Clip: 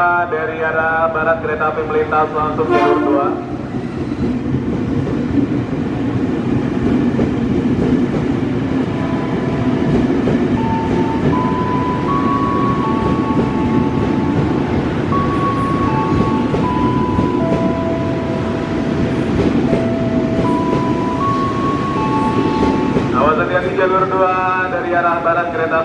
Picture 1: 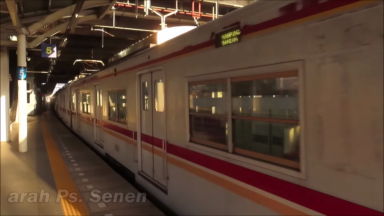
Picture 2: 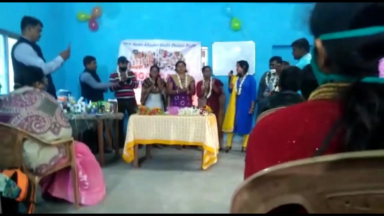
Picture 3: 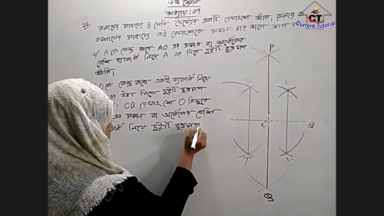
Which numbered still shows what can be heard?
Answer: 1